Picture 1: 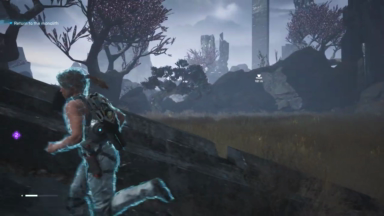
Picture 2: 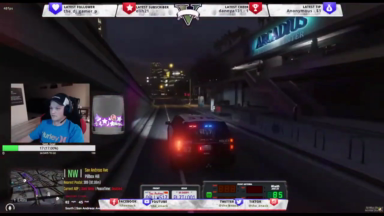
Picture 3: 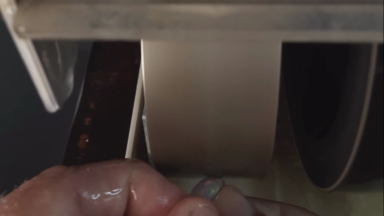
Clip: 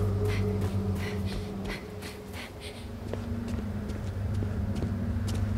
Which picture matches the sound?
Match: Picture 1